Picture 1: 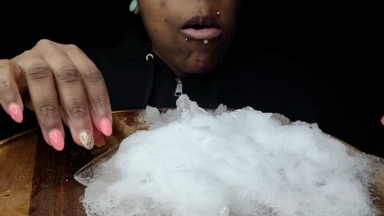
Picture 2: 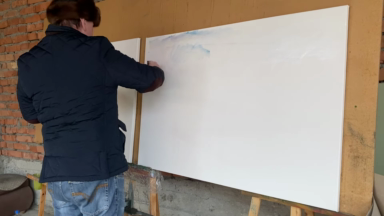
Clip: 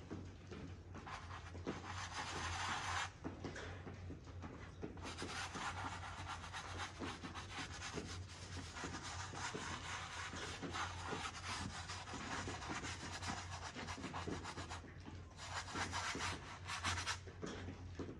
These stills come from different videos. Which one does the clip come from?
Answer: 2